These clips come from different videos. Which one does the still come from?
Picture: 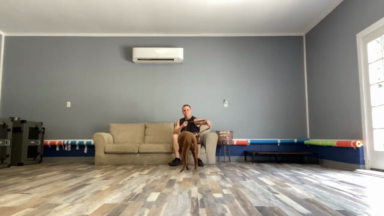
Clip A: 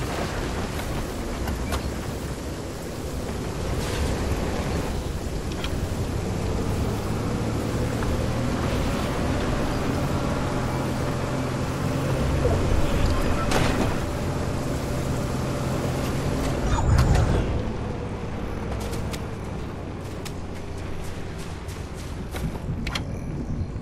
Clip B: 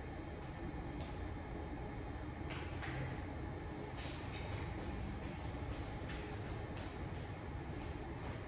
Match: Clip B